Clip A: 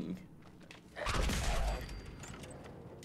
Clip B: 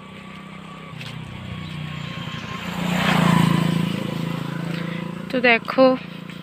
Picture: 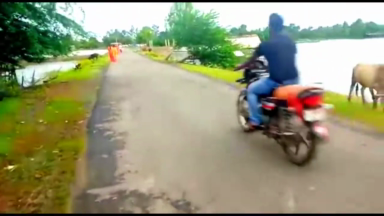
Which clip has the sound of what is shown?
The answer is B